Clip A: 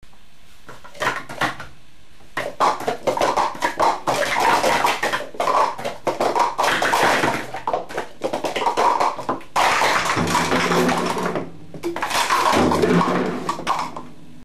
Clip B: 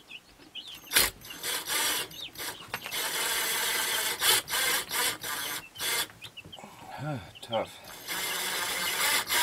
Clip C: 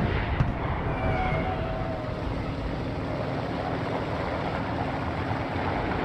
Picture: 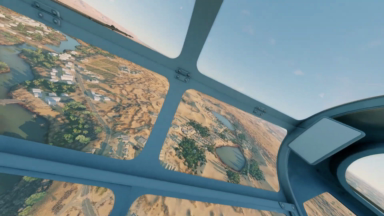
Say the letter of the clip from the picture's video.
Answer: C